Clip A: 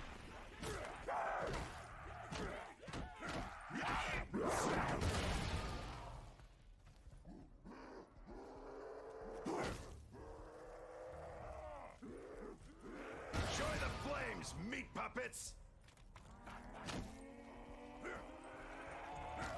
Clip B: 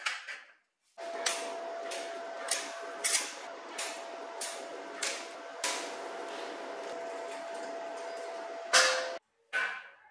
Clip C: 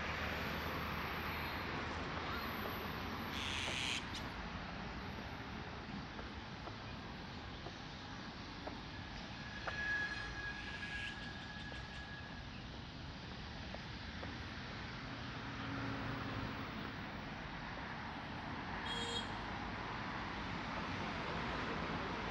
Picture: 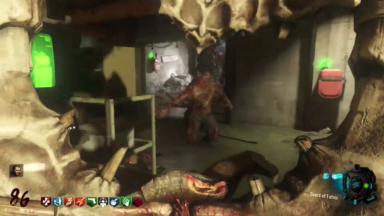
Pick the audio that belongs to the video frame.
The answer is A